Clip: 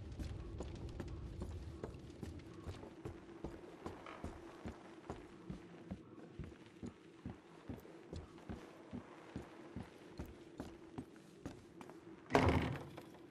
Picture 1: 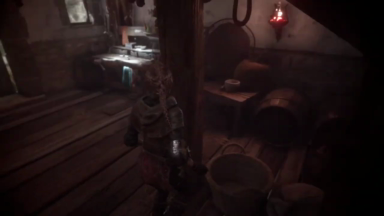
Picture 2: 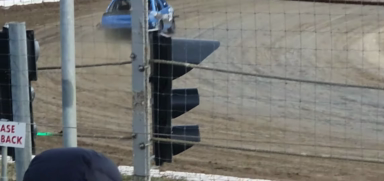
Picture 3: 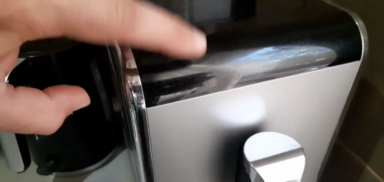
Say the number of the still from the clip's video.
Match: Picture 1